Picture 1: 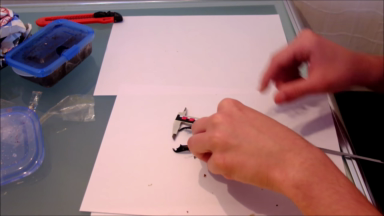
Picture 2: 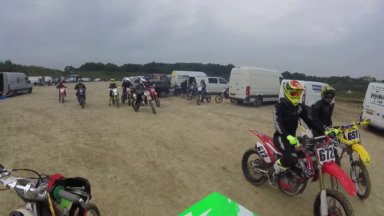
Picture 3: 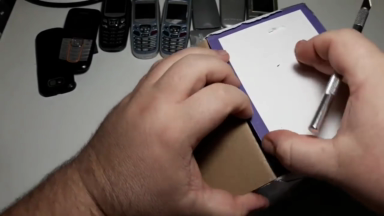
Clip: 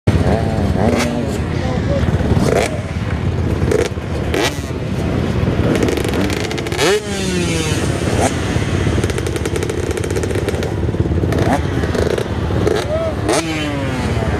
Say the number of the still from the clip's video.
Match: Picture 2